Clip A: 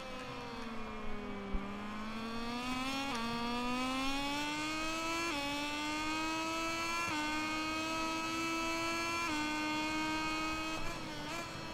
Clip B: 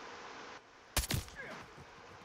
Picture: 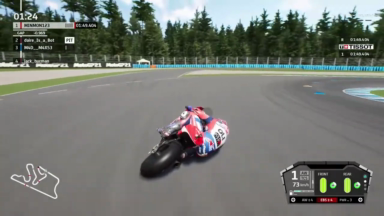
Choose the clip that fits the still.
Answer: A